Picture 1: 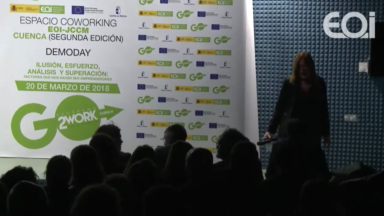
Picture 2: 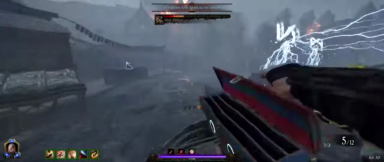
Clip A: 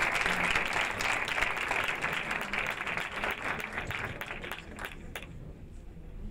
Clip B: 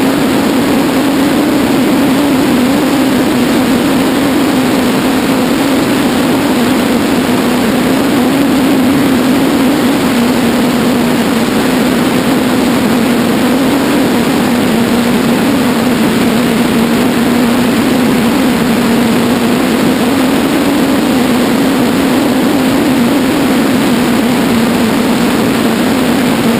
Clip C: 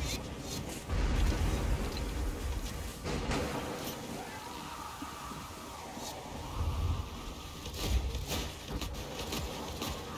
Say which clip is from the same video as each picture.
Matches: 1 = A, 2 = C